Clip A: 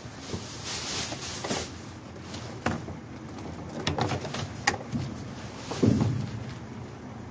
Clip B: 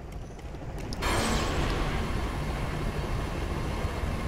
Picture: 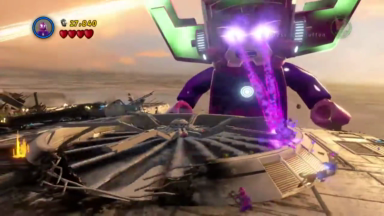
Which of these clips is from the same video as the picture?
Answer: B